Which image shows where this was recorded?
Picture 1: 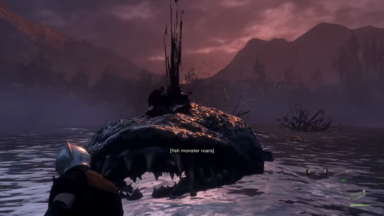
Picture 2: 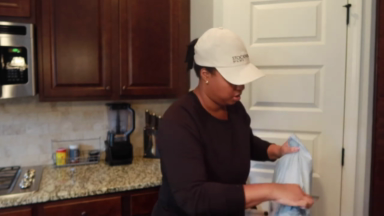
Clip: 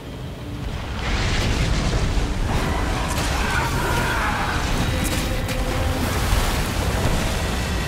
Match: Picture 1